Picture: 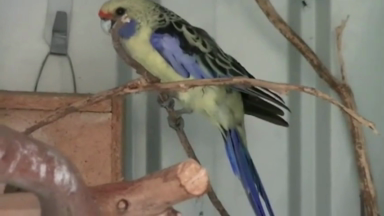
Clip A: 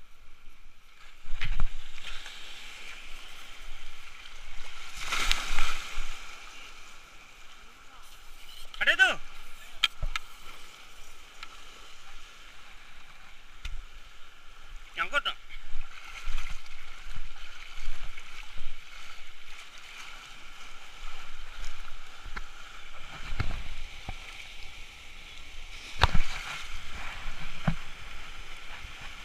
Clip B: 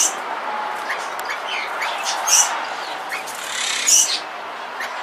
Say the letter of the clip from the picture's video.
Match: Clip B